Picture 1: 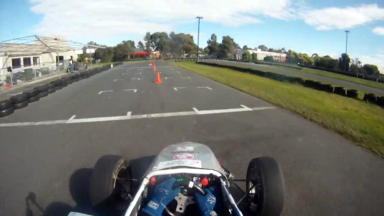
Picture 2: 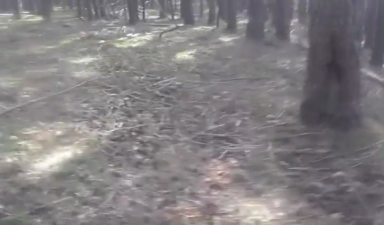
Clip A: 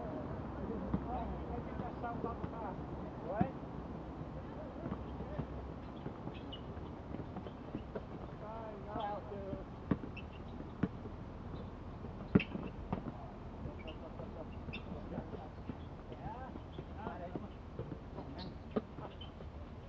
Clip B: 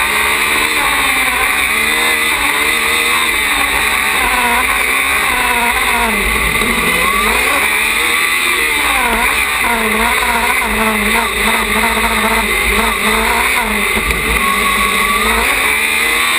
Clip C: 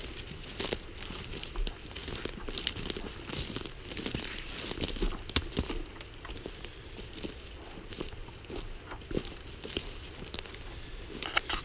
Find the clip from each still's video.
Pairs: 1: B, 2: C